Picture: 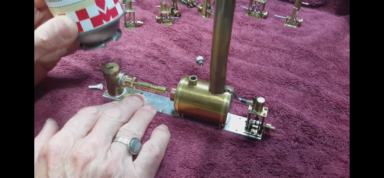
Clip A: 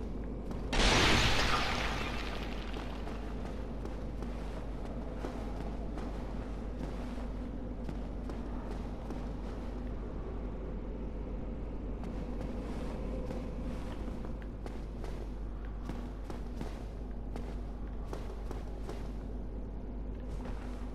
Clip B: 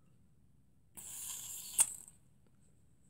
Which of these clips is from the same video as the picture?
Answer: B